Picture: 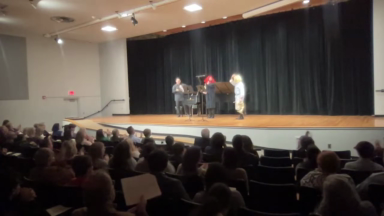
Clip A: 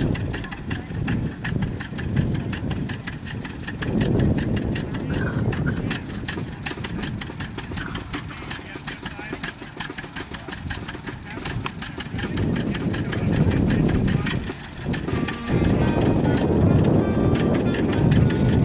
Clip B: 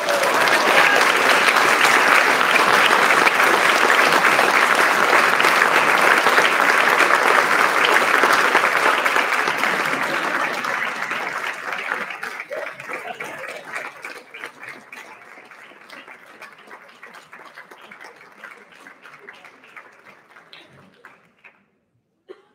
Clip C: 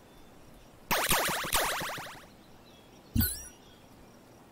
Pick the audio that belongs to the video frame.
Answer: B